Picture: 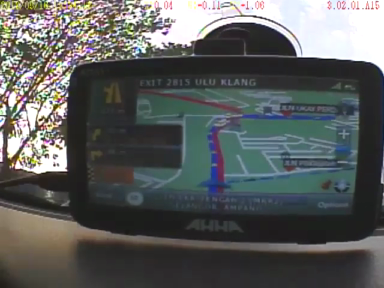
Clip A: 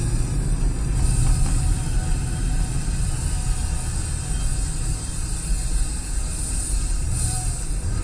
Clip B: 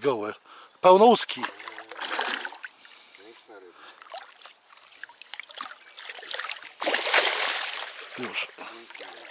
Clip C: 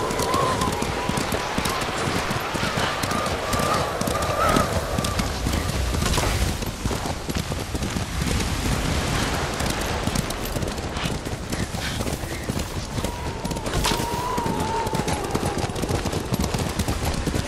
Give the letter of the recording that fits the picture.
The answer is A